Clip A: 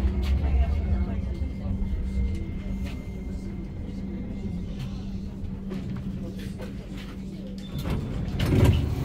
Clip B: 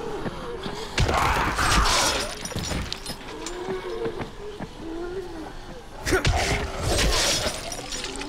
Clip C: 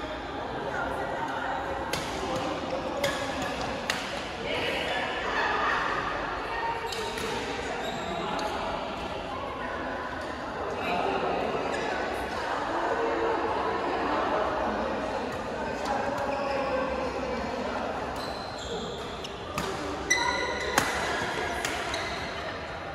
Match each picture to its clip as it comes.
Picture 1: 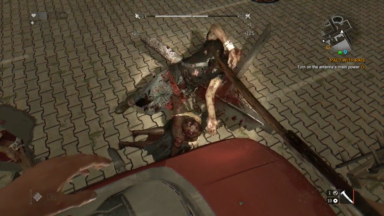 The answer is B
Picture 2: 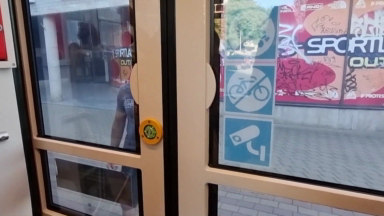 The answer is A